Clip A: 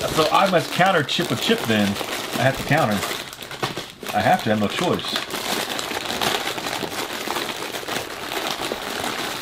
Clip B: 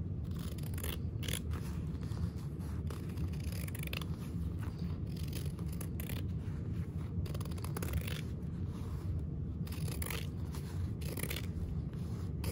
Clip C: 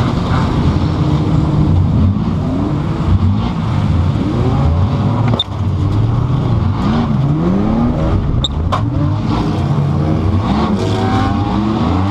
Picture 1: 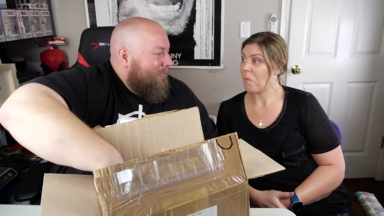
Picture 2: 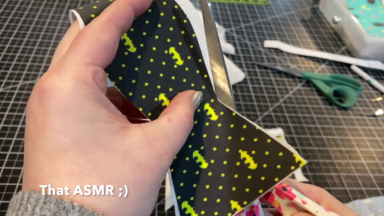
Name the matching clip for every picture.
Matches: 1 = A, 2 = B